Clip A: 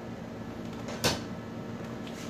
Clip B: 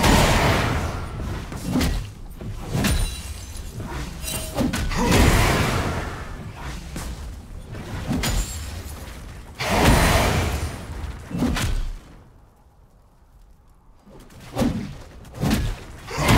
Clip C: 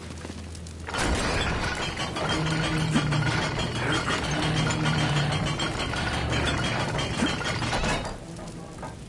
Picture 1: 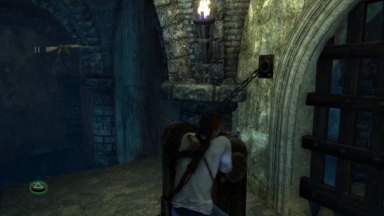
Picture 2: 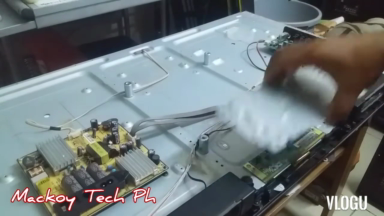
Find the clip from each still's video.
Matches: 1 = C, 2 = A